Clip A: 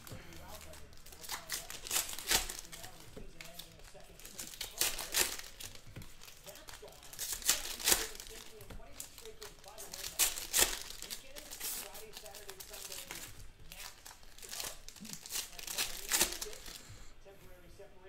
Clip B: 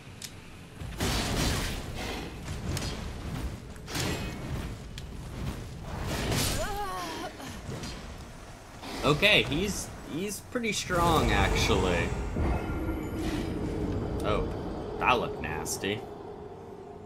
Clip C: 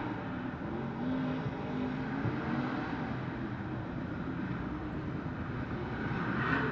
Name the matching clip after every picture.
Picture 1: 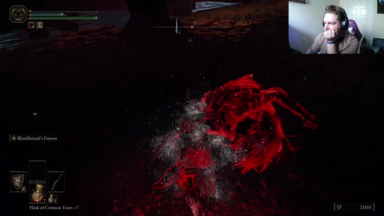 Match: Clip B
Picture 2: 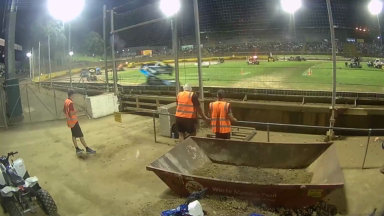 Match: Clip C